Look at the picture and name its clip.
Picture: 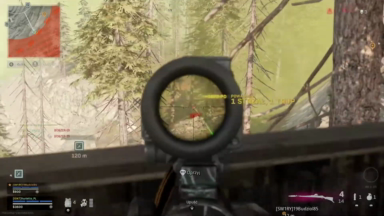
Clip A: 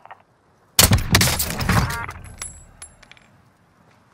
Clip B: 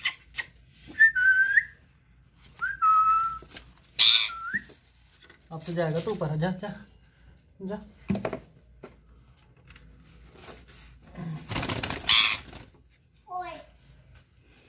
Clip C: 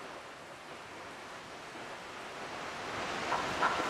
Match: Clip A